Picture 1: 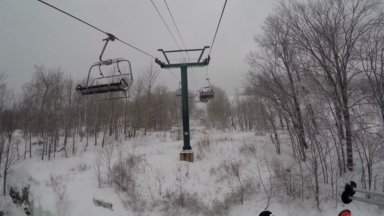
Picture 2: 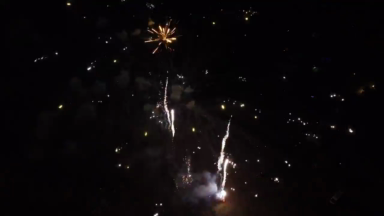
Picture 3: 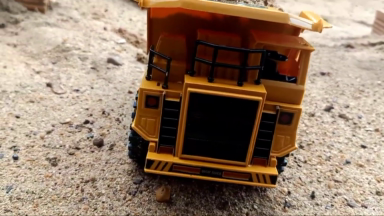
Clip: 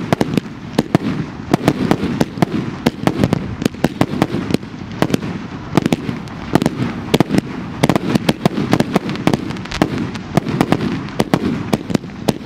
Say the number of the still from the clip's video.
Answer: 2